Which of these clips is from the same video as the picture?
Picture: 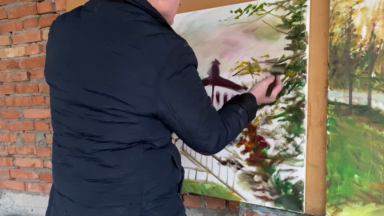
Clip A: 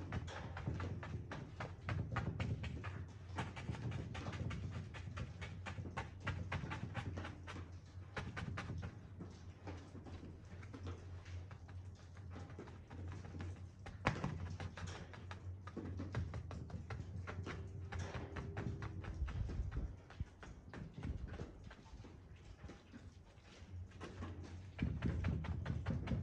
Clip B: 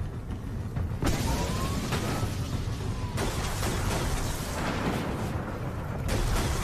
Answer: A